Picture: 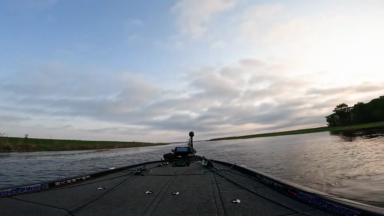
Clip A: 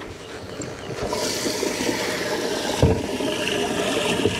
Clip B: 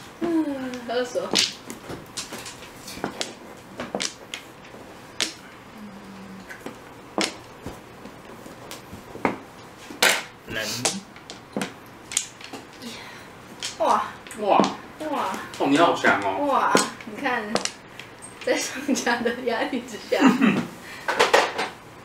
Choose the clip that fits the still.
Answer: A